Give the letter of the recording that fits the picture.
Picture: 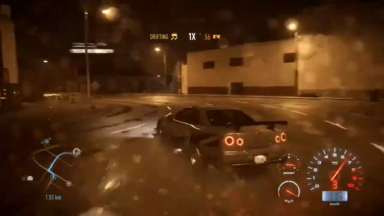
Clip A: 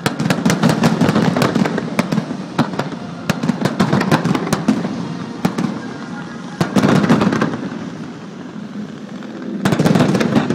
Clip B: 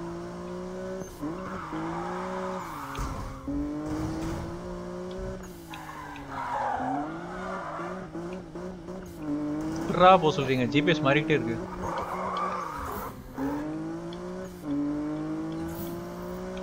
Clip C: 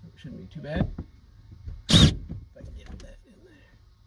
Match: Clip B